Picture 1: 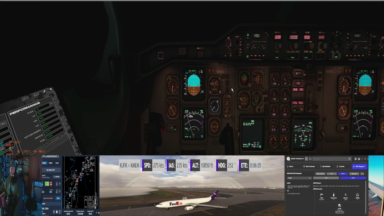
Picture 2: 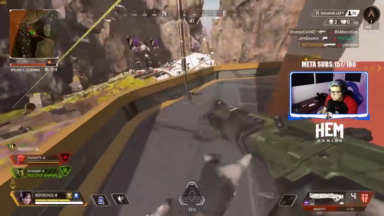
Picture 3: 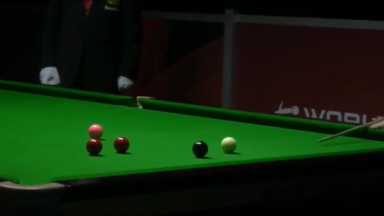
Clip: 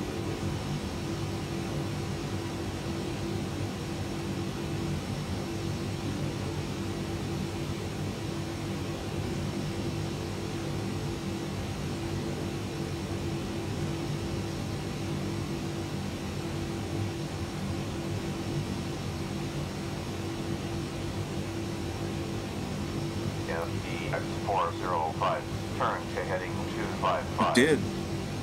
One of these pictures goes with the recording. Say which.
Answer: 1